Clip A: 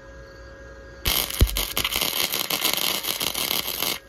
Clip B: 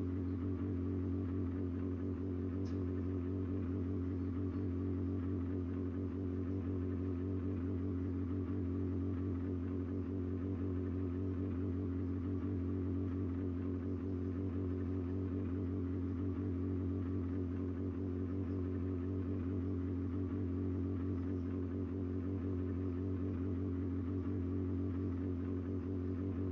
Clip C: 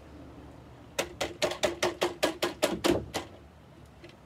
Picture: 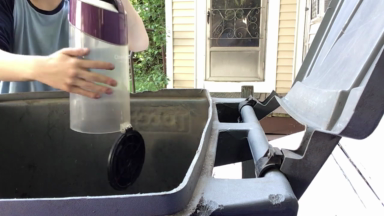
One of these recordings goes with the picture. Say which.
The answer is C